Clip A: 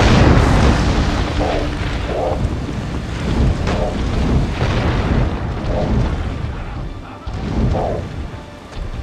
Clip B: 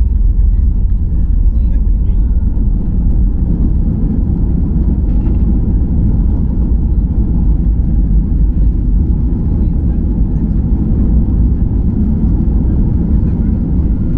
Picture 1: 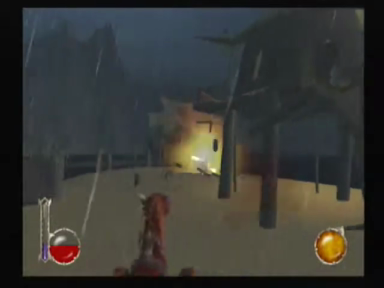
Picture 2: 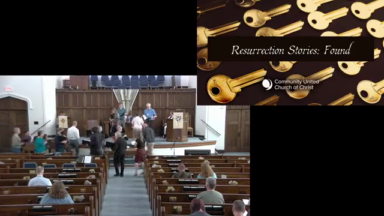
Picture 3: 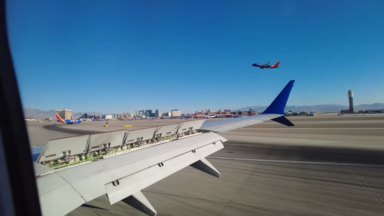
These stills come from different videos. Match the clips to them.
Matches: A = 1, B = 3